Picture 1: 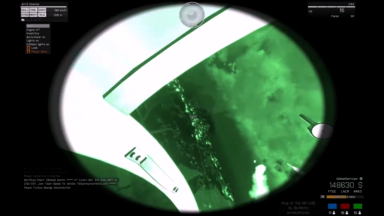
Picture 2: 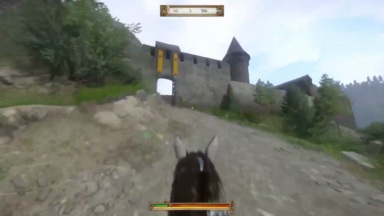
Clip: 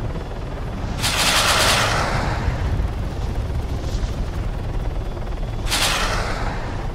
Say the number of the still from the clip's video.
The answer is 1